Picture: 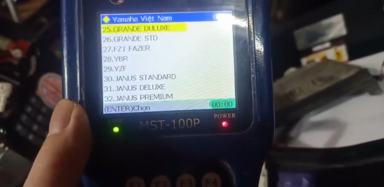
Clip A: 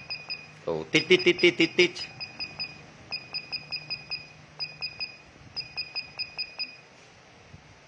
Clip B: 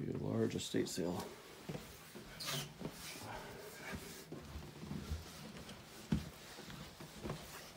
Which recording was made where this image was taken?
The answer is A